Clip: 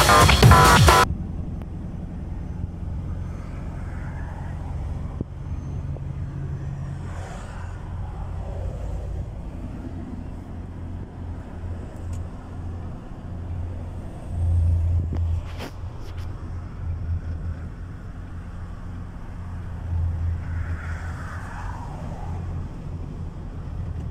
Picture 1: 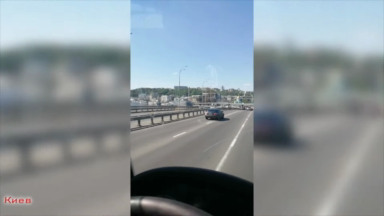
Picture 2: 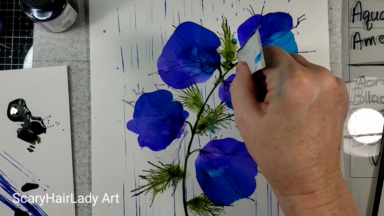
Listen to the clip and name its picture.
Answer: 1